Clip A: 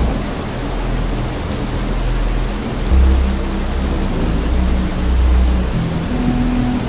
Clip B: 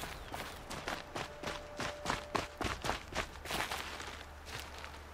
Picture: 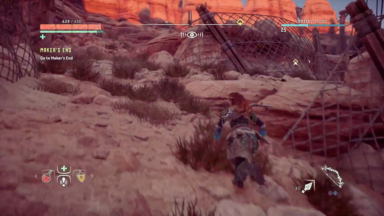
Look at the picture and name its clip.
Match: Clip B